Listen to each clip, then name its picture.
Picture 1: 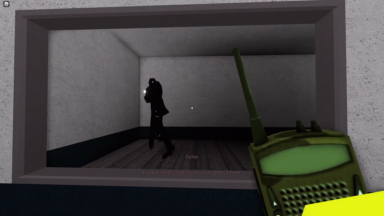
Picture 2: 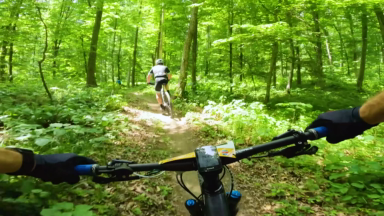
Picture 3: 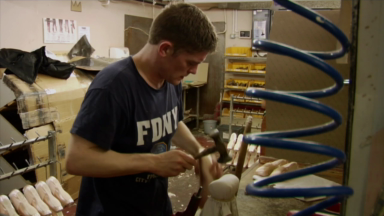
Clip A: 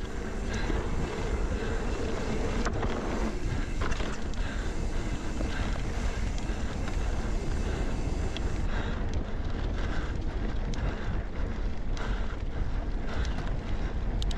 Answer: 2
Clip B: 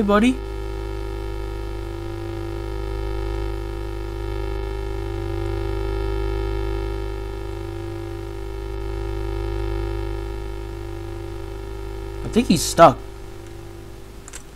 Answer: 1